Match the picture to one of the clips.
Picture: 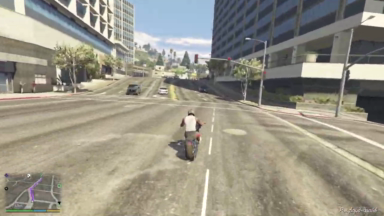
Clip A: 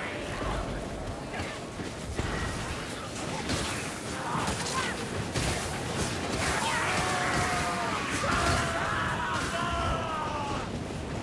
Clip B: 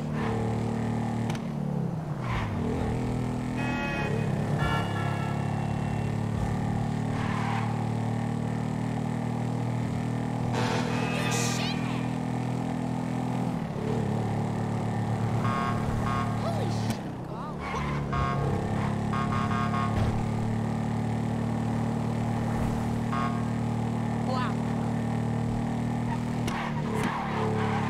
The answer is B